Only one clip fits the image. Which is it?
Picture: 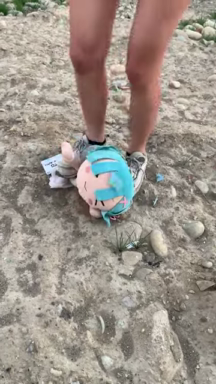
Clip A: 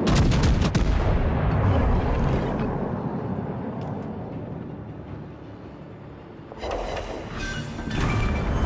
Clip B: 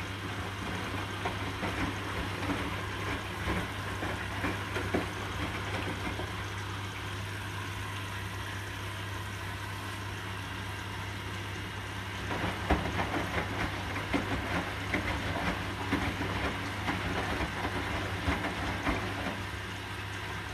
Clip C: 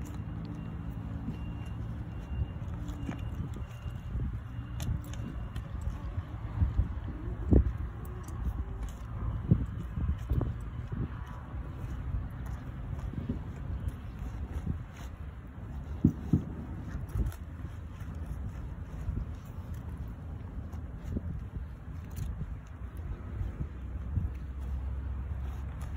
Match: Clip C